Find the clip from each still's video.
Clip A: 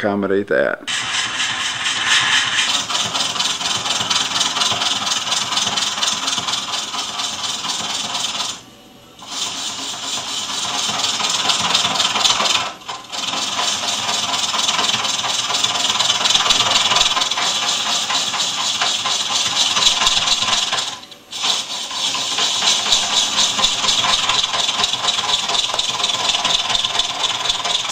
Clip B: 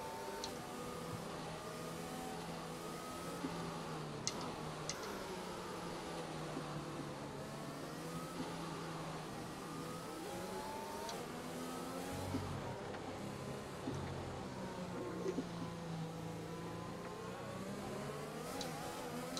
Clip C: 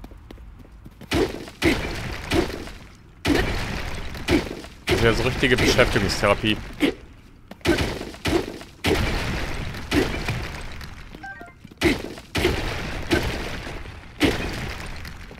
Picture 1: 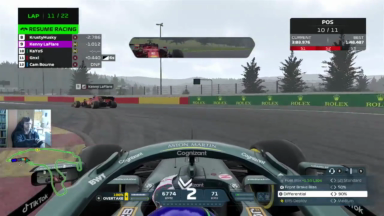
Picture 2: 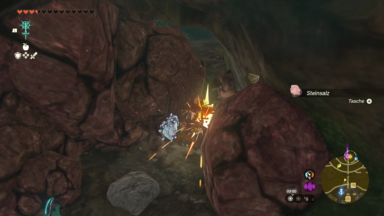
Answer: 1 B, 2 C